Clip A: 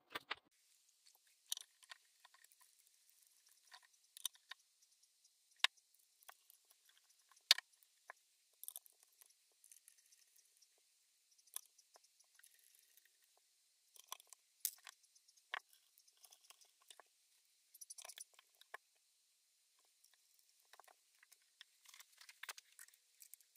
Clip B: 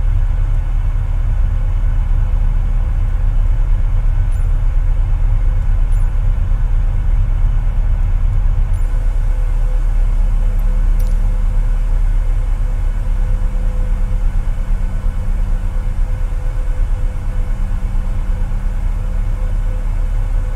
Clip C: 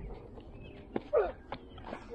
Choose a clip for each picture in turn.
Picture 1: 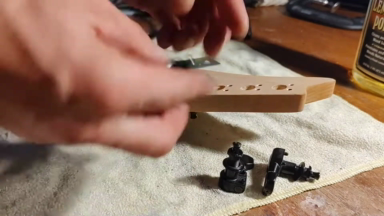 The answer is A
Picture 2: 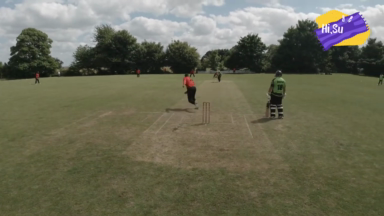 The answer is C